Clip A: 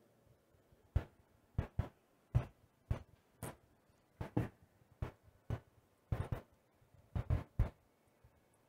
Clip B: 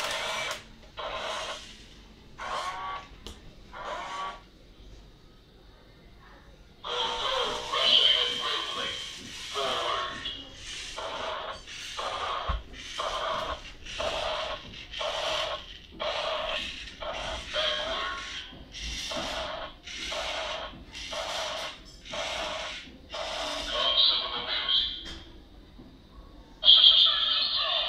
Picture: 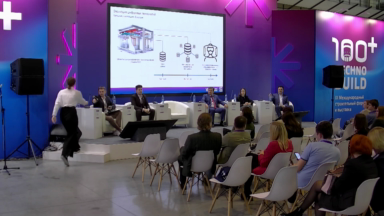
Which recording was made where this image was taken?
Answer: A